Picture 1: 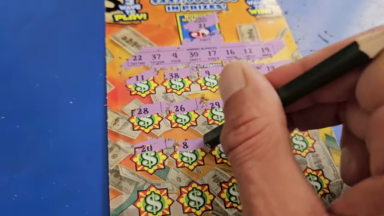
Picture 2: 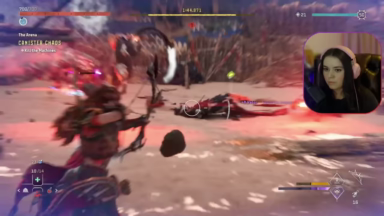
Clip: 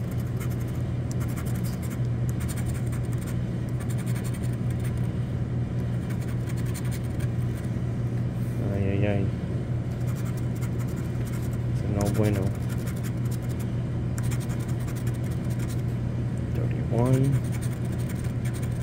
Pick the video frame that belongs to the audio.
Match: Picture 1